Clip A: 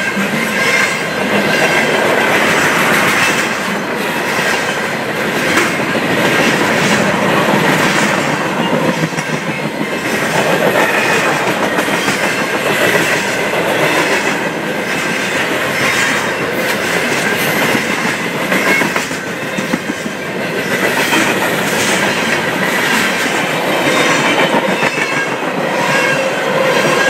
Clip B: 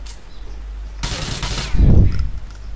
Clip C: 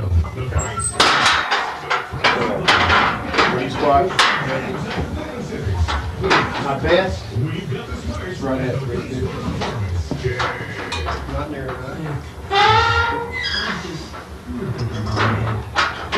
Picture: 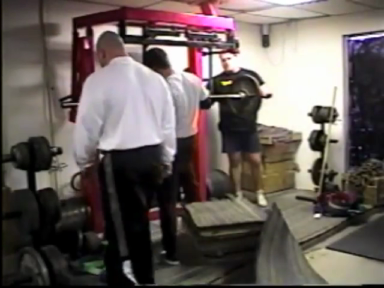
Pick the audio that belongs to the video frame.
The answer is C